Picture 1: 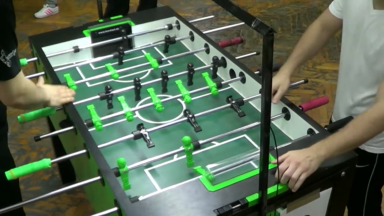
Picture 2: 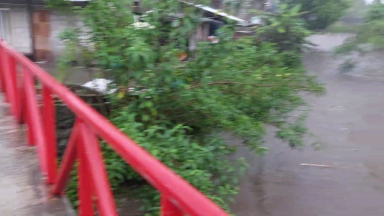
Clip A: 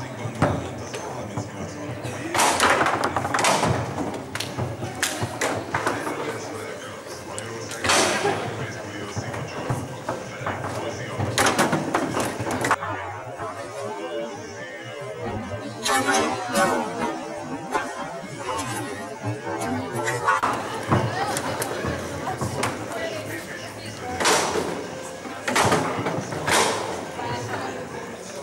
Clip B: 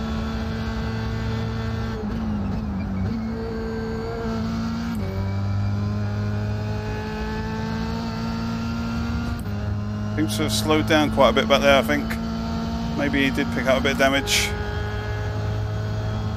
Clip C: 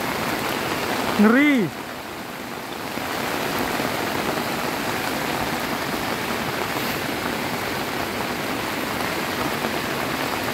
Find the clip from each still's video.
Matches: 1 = A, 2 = C